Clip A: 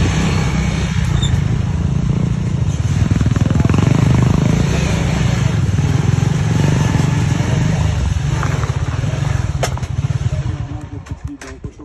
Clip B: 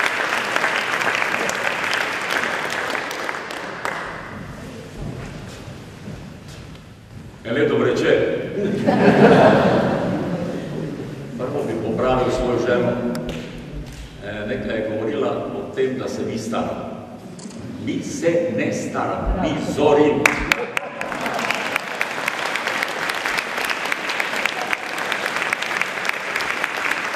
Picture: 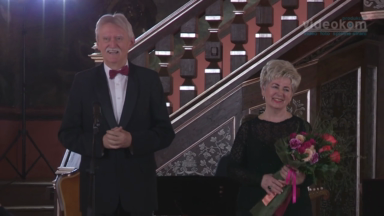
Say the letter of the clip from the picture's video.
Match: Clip B